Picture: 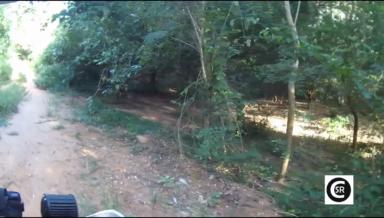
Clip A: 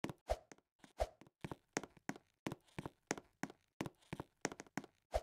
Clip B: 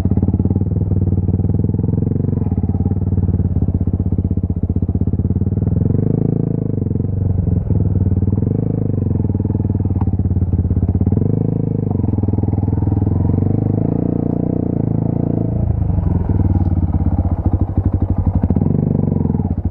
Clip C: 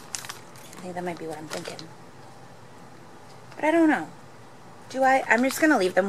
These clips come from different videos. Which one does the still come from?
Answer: B